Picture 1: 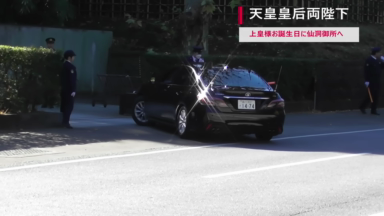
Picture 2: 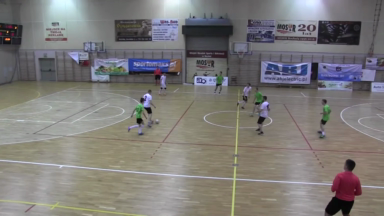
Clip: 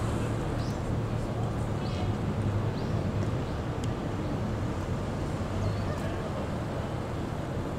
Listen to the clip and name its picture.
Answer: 1